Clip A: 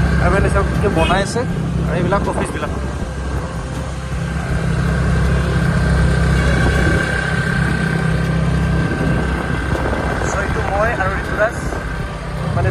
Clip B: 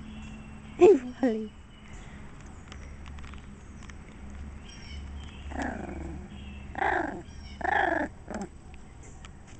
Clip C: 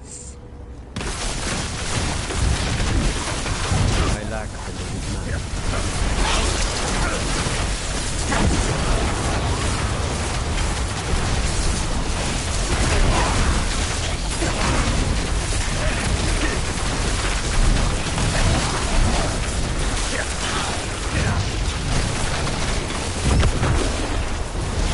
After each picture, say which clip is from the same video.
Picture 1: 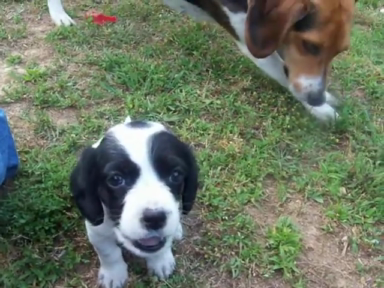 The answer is B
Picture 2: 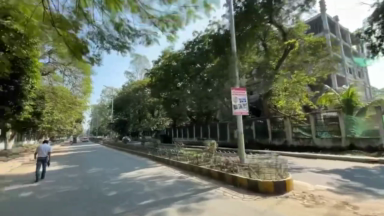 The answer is A